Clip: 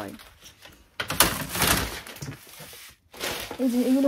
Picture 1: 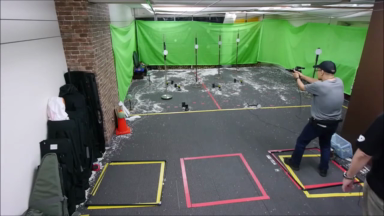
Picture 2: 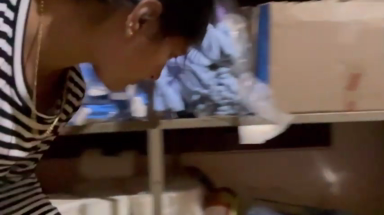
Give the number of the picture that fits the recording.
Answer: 2